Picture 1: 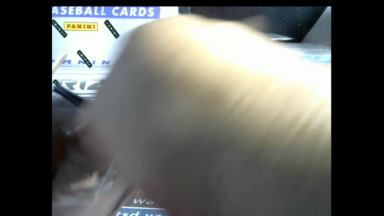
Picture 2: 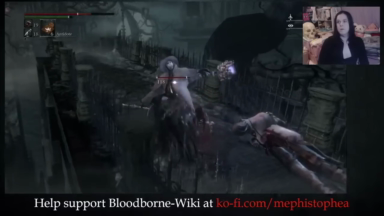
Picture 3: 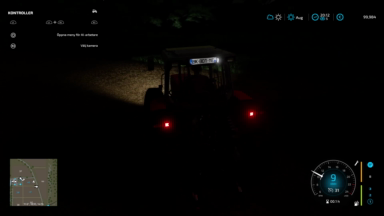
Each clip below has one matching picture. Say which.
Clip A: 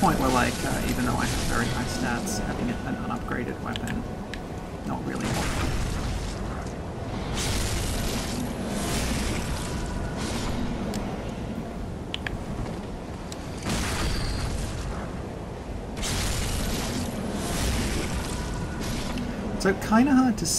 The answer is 2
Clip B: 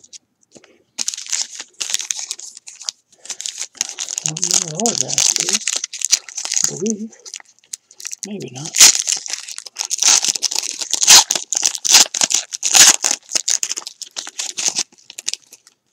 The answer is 1